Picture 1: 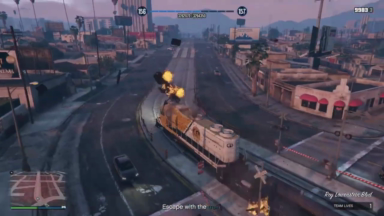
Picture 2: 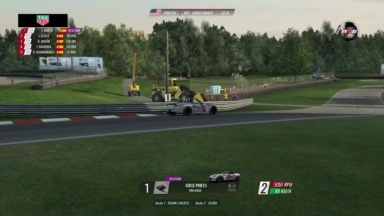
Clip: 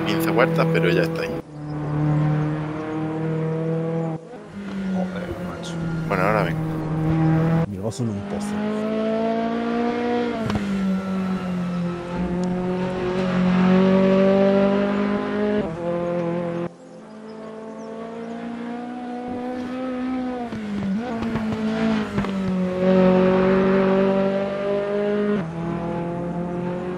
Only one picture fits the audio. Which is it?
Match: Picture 2